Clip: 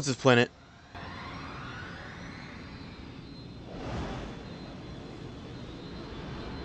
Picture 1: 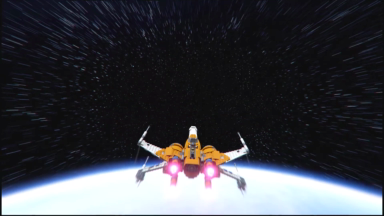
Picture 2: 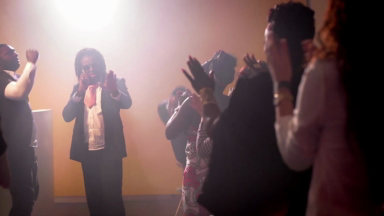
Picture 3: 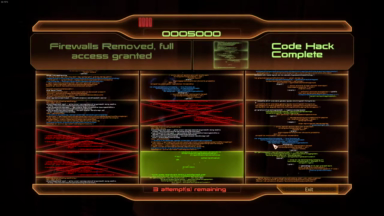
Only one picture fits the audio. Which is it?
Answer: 1